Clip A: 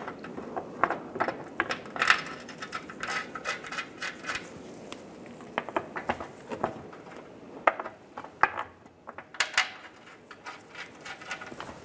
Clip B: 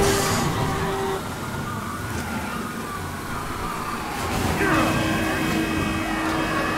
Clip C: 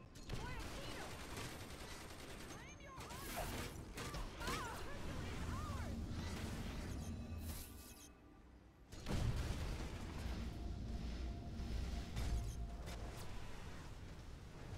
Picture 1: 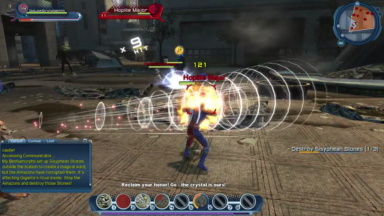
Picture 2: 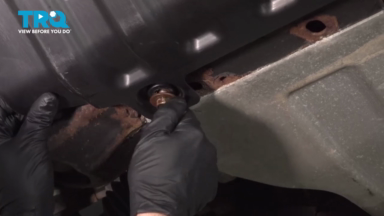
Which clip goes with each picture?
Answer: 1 C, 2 A